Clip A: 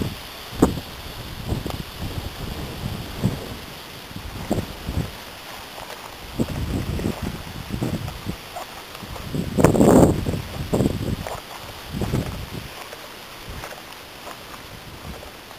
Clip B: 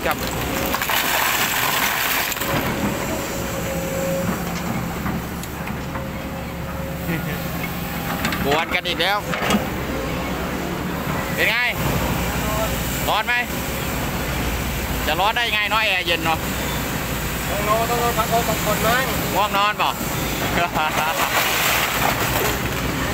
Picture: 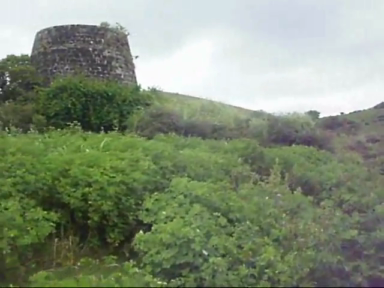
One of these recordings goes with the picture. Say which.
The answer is A